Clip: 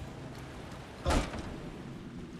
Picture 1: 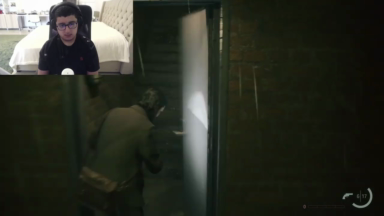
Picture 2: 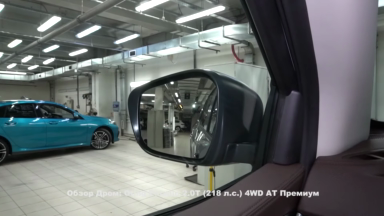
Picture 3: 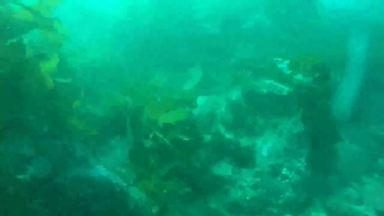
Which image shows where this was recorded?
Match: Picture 1